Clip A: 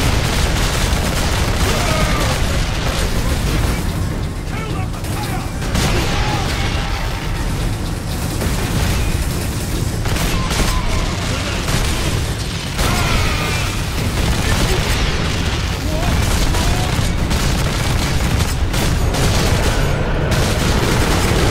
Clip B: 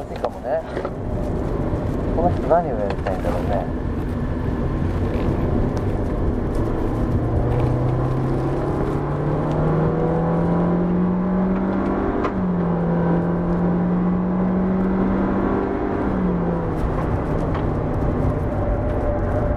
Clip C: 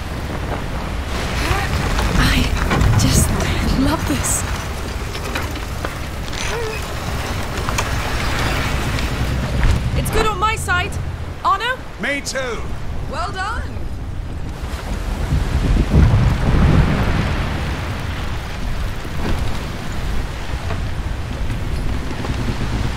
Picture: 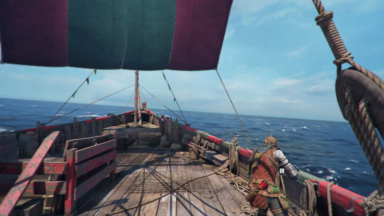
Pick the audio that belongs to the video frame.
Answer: C